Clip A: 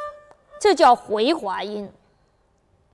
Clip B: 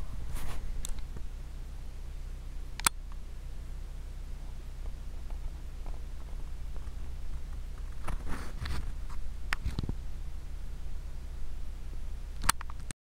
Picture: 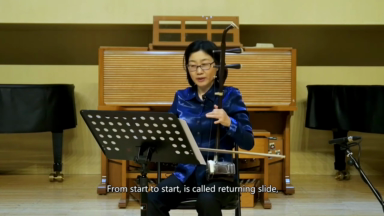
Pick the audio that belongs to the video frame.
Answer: A